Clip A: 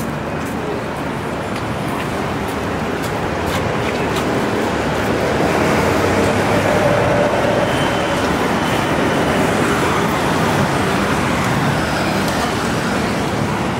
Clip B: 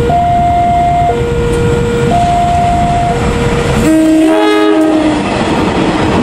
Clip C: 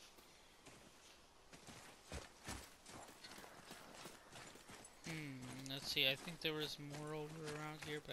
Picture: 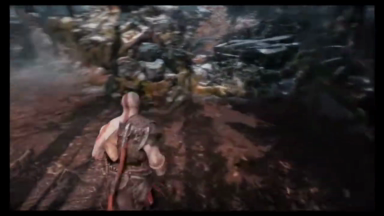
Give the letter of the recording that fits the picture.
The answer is C